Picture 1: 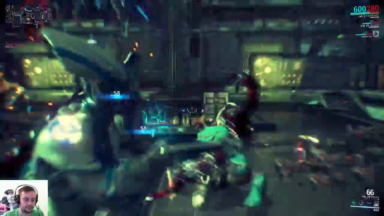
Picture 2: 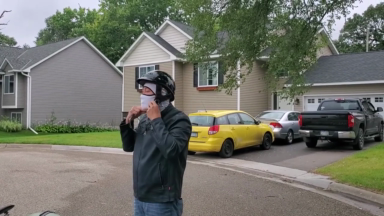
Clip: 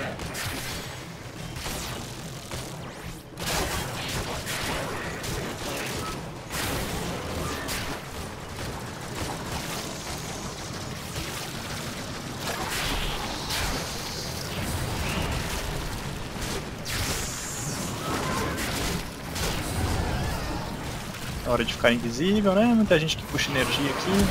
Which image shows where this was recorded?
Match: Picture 1